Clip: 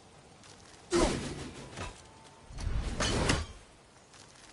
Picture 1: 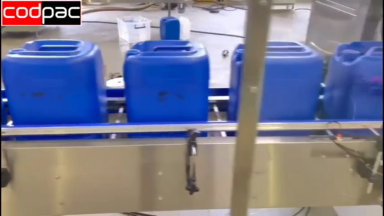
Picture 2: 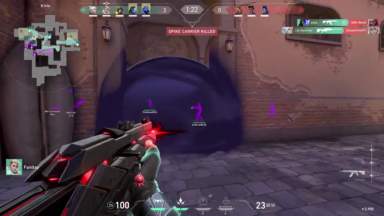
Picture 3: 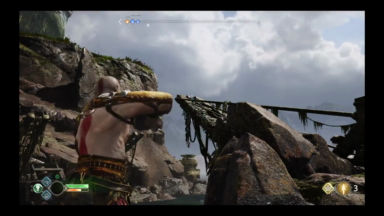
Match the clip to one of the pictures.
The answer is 3